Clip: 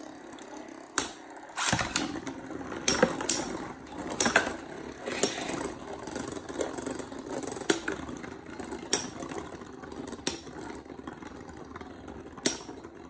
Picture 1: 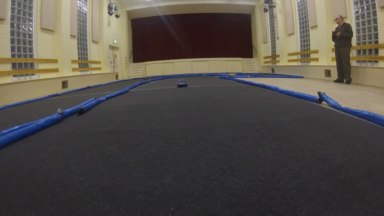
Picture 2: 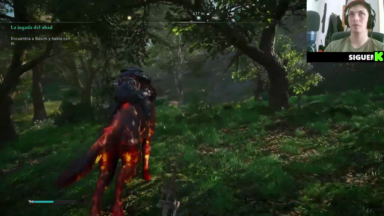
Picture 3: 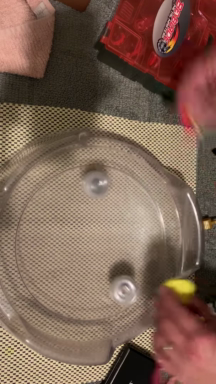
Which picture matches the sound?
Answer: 3